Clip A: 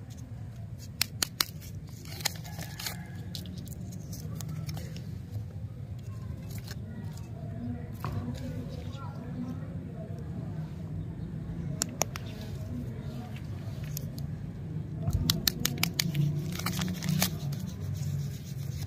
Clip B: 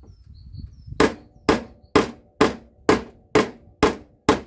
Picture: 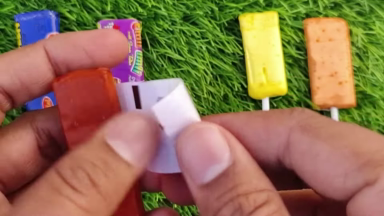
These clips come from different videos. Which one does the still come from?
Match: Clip A